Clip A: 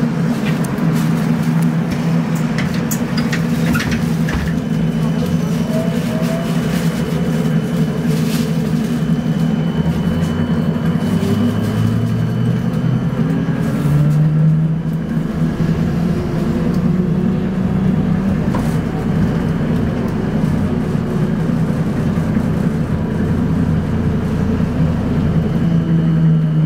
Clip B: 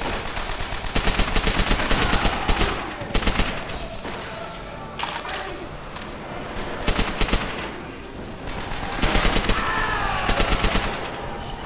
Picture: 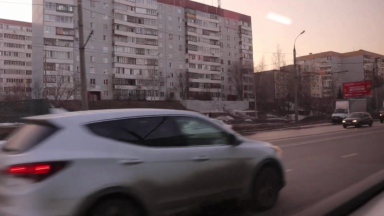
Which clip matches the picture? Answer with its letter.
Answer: A